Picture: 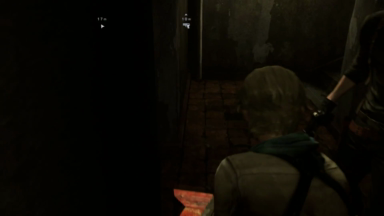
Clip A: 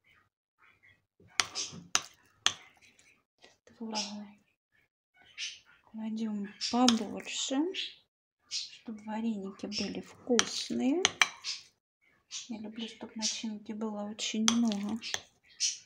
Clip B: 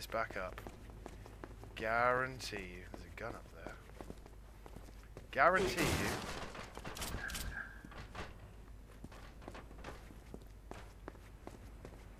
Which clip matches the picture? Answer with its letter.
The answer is B